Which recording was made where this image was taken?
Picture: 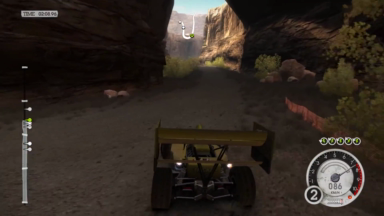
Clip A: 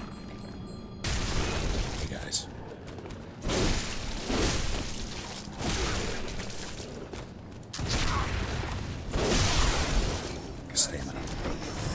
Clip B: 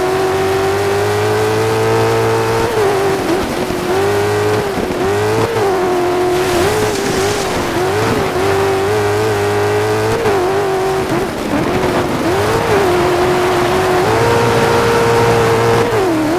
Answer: B